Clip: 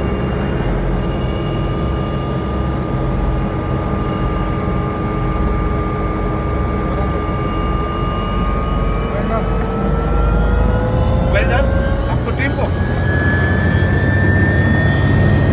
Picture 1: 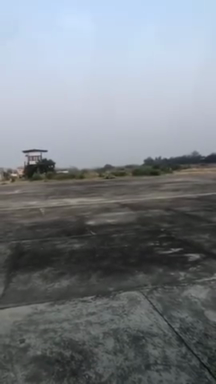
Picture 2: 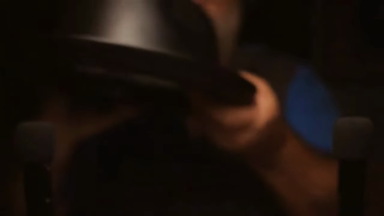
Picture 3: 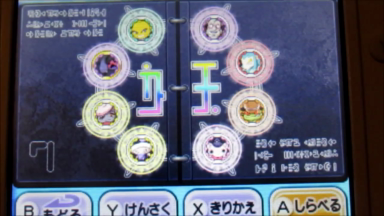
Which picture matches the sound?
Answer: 1